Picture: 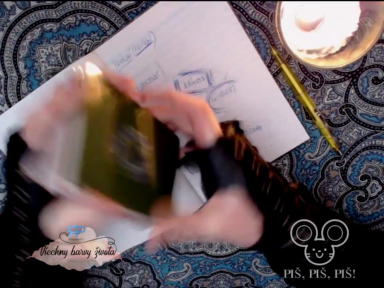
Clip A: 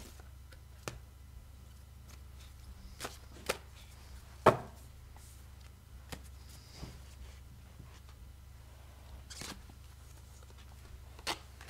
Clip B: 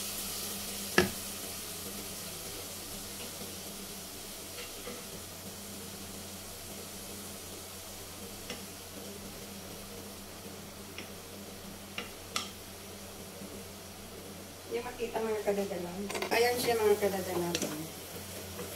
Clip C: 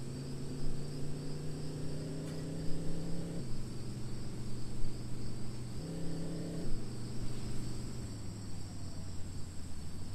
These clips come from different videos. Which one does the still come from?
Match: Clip A